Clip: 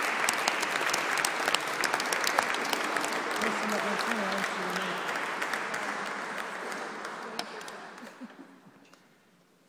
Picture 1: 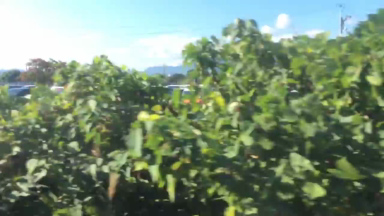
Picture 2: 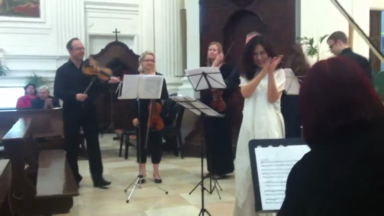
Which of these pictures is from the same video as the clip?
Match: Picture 2